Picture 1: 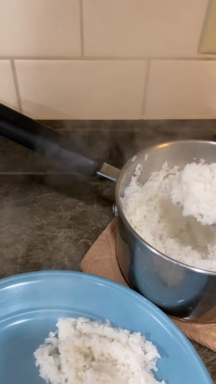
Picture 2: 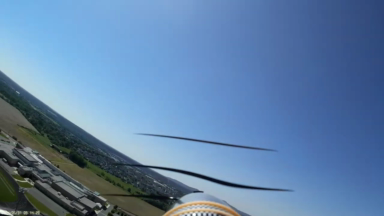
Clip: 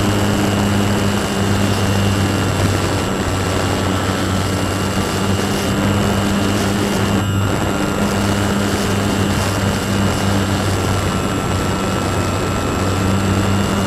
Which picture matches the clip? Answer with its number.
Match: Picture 2